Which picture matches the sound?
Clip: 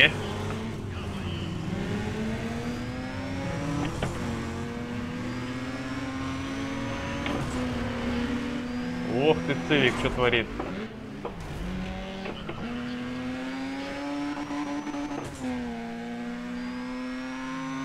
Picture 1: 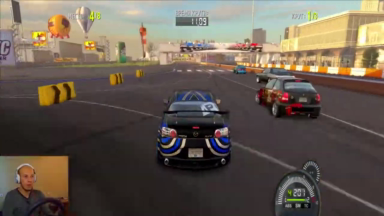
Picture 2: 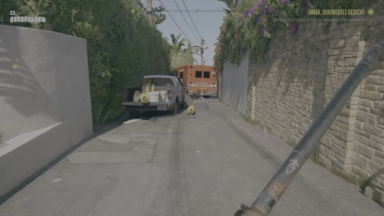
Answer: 1